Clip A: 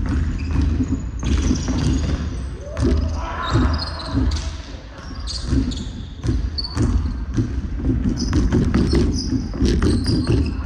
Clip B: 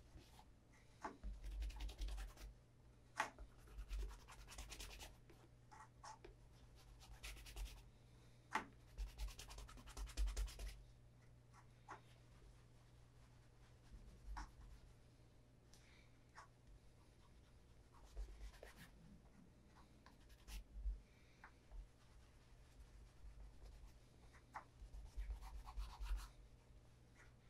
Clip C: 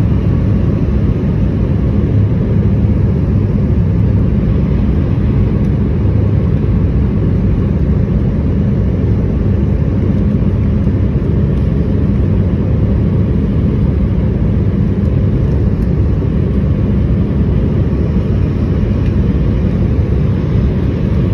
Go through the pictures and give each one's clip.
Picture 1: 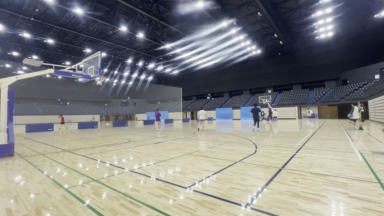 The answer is A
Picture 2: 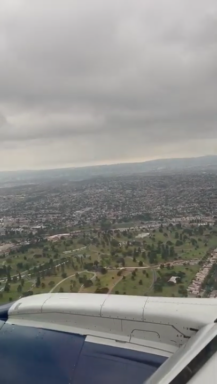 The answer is C